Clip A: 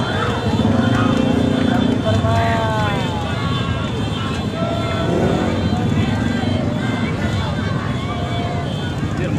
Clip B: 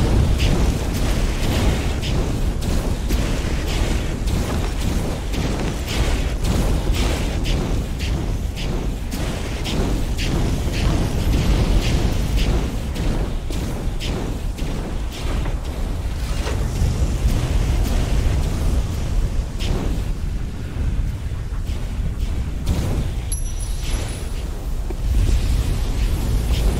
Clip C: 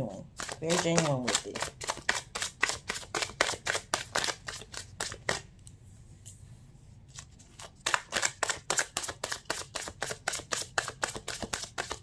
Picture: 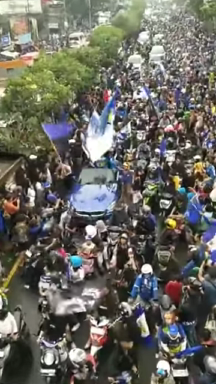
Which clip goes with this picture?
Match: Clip A